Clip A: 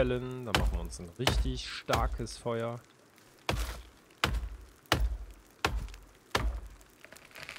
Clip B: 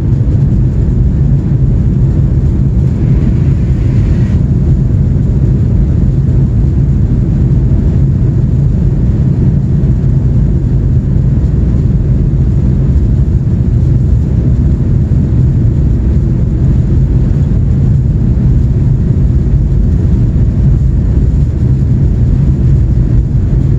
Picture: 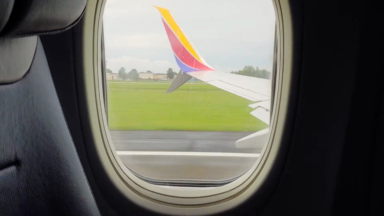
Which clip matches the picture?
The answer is B